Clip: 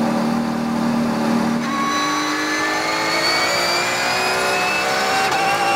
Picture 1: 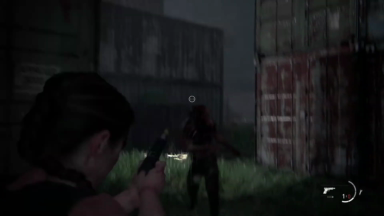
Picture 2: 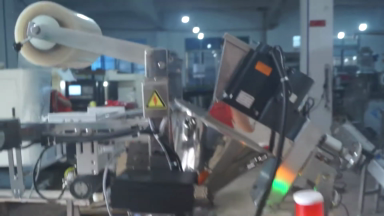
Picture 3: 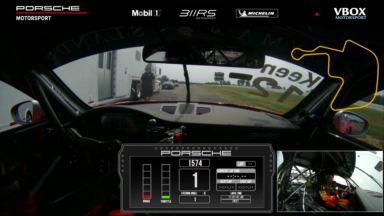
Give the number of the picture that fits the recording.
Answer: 3